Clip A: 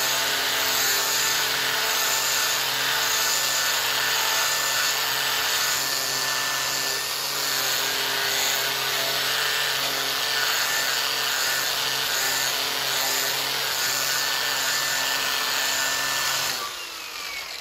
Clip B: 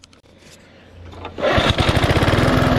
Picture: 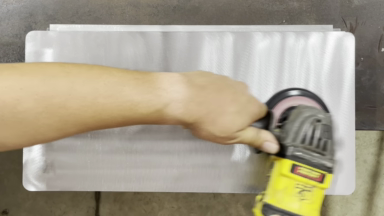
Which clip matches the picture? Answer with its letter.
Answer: A